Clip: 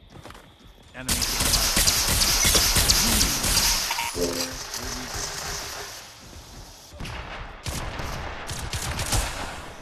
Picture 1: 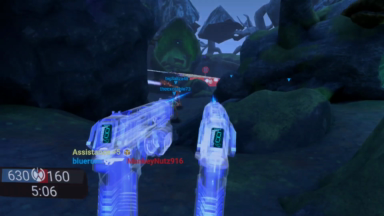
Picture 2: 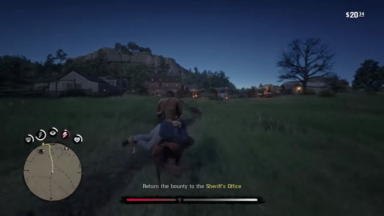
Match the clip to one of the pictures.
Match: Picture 1